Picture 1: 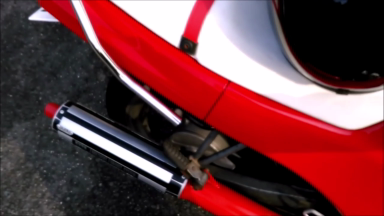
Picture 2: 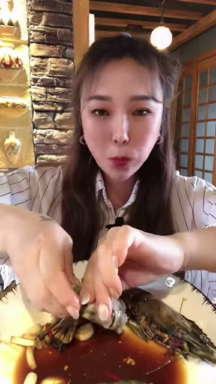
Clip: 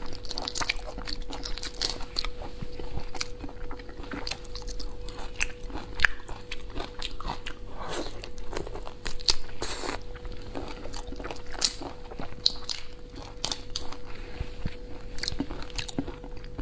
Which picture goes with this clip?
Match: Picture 2